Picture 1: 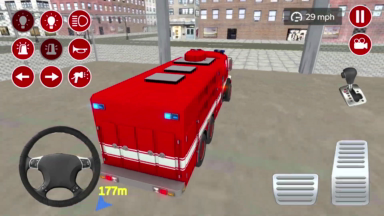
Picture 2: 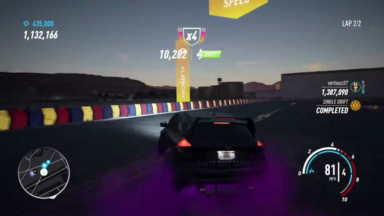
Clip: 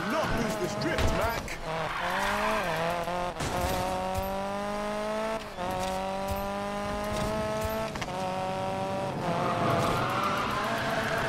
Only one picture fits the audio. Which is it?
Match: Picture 2